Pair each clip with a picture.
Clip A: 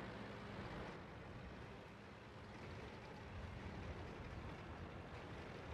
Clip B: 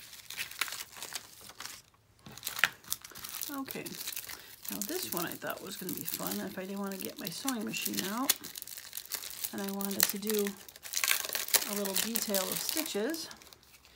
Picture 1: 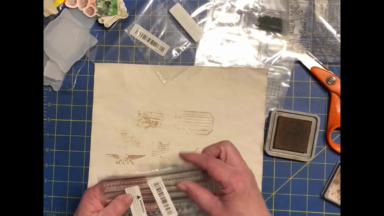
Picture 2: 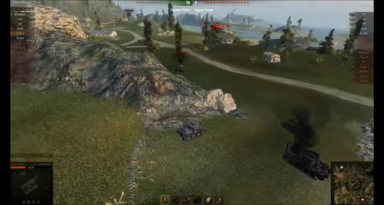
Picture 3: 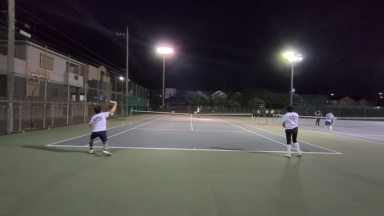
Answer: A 2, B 1